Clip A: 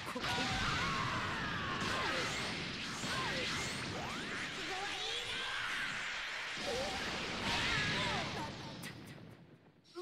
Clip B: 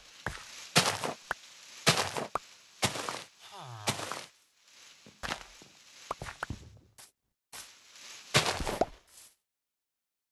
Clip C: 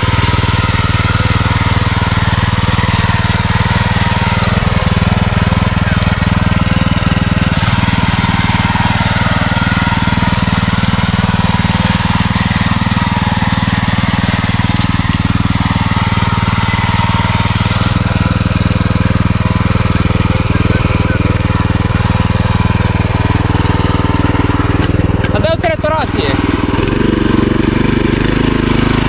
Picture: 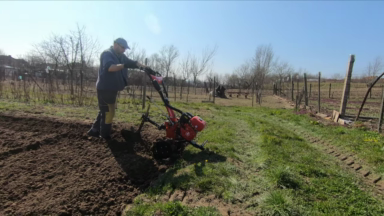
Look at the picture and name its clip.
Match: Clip C